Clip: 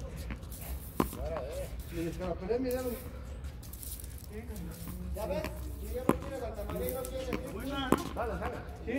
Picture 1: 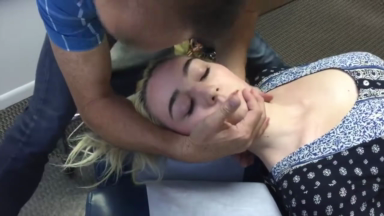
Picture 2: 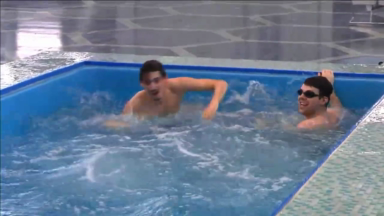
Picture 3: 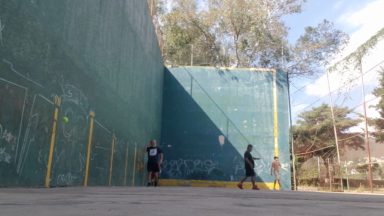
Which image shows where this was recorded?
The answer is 3